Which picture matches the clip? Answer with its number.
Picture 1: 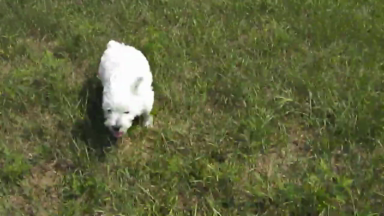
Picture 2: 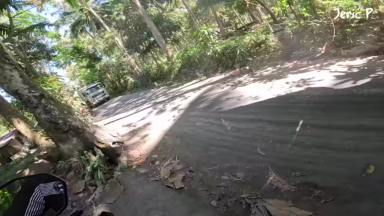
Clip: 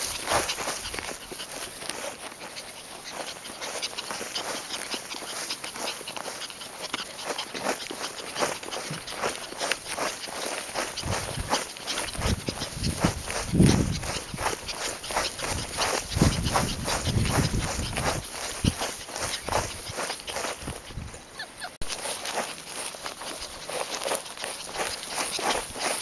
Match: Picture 1